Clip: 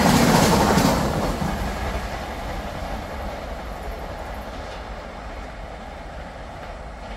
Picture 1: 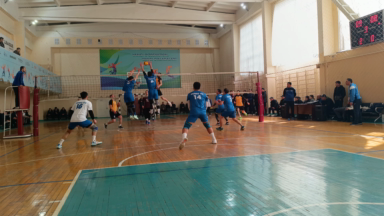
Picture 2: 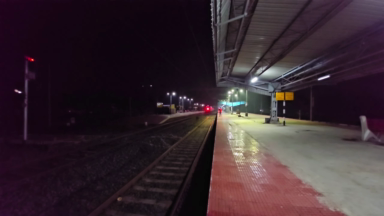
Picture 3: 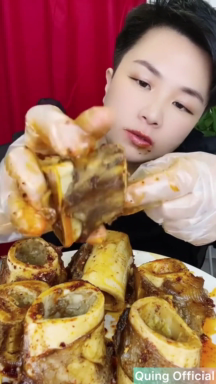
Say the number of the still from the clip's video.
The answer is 2